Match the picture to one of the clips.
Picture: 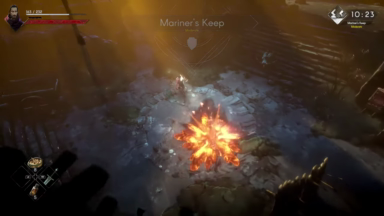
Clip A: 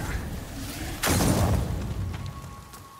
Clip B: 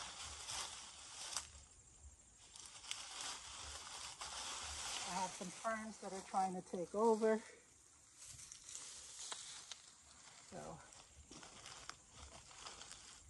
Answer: A